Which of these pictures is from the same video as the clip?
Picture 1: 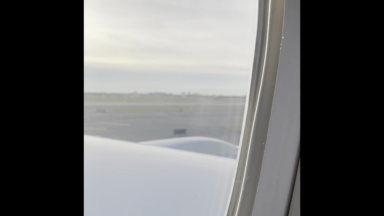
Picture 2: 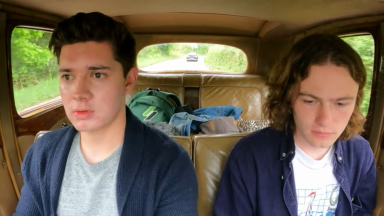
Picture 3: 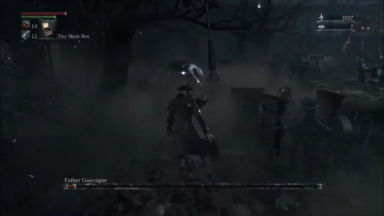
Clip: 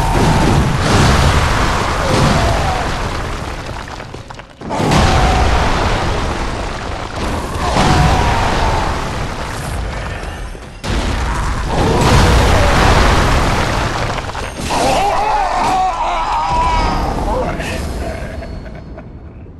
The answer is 3